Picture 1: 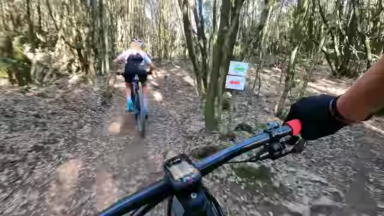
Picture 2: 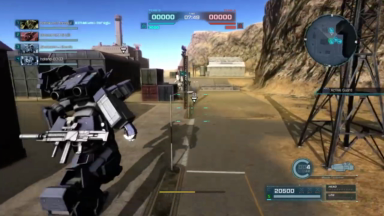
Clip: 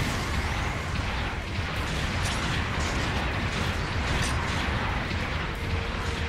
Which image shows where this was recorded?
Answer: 2